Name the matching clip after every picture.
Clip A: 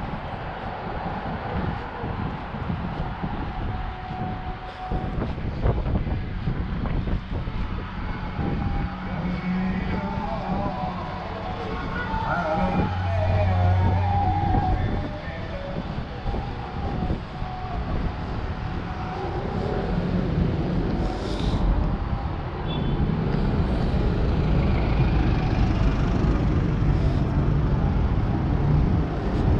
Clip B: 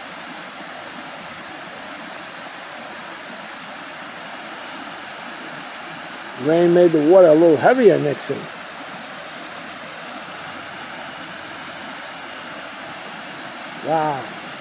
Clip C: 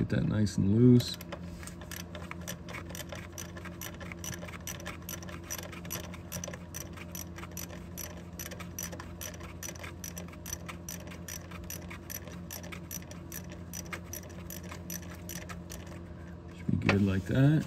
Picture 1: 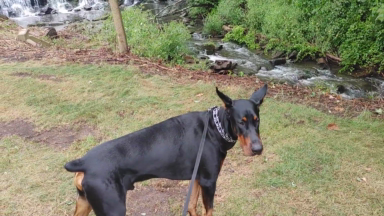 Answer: B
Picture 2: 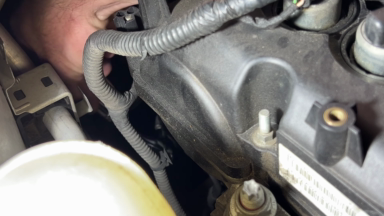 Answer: C